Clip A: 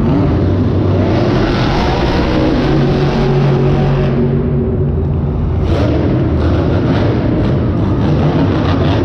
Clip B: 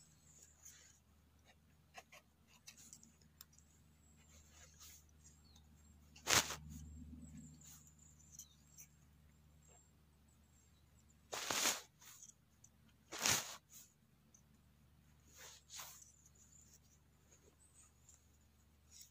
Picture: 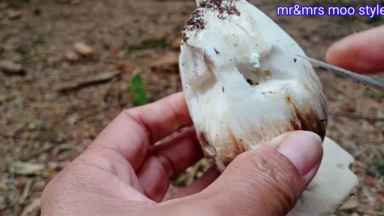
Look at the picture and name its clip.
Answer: B